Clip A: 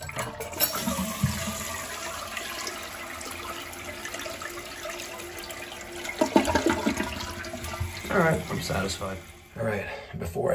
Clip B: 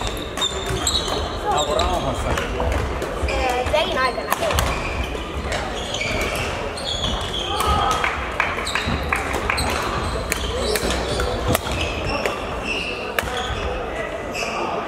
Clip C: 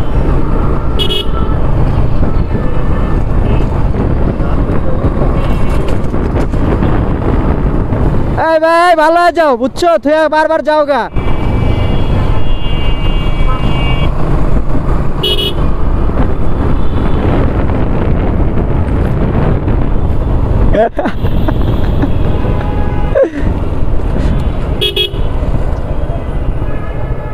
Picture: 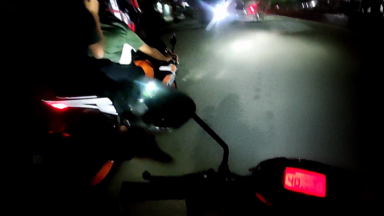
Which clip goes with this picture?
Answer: C